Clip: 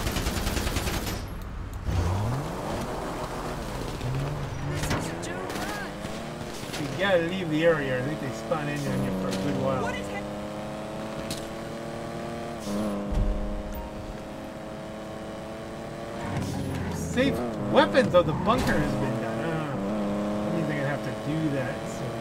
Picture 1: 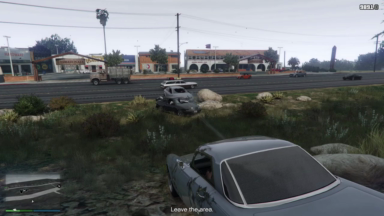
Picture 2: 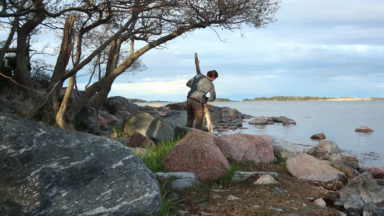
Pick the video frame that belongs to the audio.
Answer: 1